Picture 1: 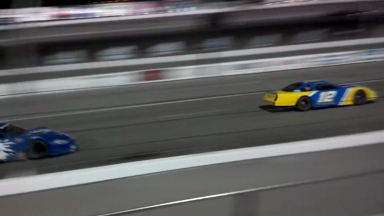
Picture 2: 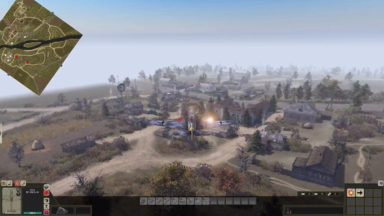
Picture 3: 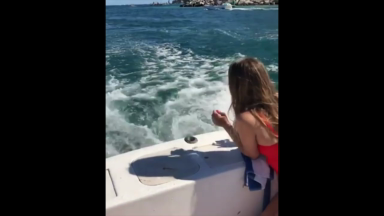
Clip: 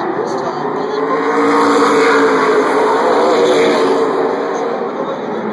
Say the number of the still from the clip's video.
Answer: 1